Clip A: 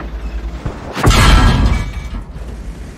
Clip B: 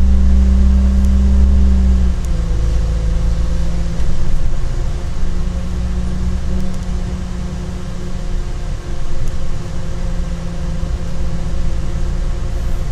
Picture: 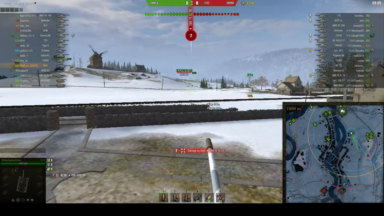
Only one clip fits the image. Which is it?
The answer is A